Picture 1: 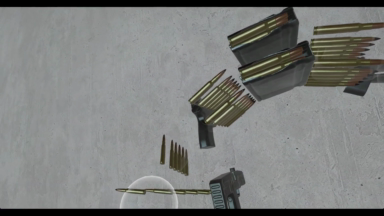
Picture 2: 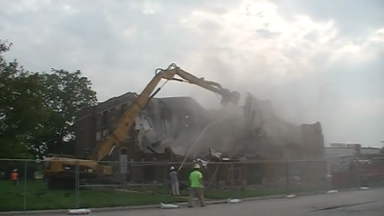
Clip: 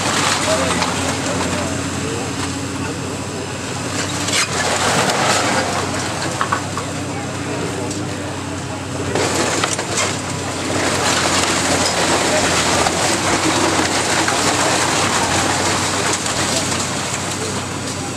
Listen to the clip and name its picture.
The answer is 2